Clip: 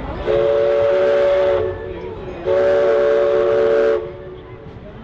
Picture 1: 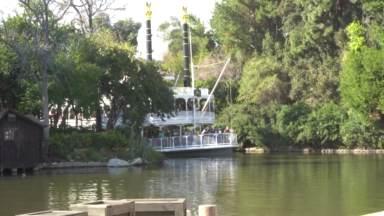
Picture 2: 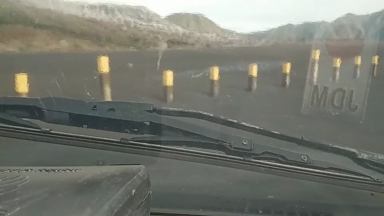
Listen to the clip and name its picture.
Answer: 1